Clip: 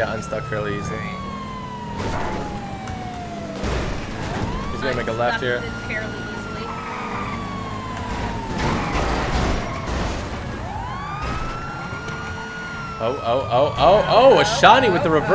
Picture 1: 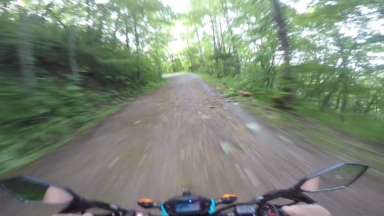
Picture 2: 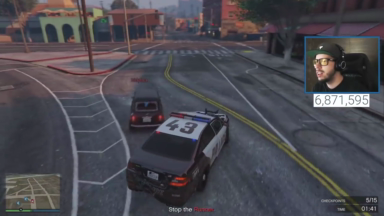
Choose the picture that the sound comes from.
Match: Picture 2